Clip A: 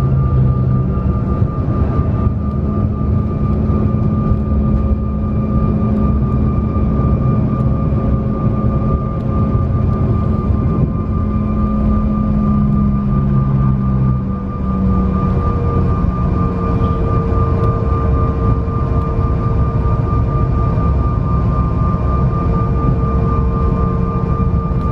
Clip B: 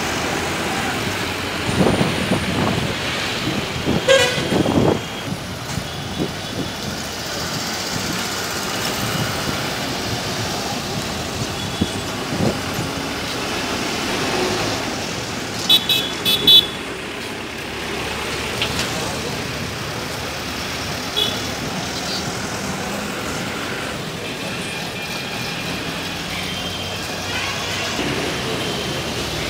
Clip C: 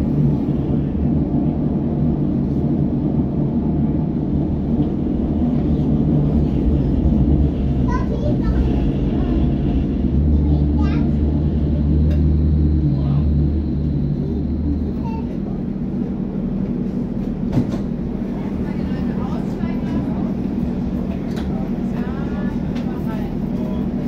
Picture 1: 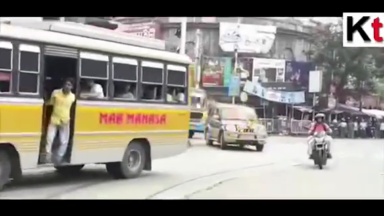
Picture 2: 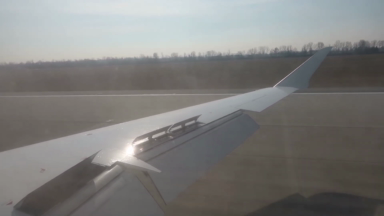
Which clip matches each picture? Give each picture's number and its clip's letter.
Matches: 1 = B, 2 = A